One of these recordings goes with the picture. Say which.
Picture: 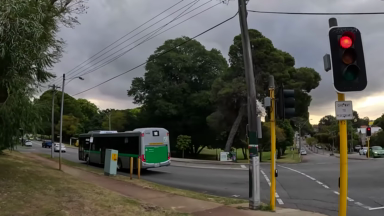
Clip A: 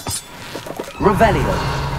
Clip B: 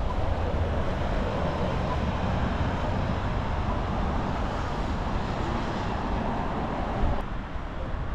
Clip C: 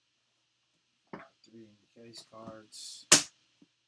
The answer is B